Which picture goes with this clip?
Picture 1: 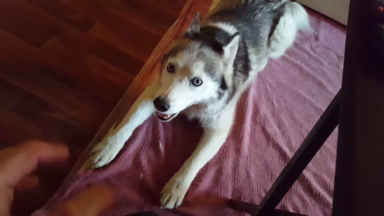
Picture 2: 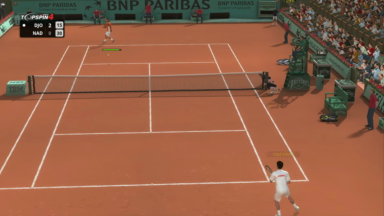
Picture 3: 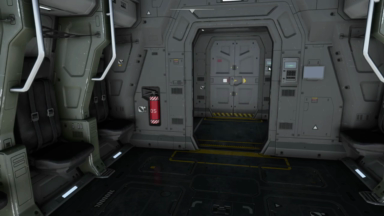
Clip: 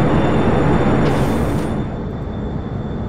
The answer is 3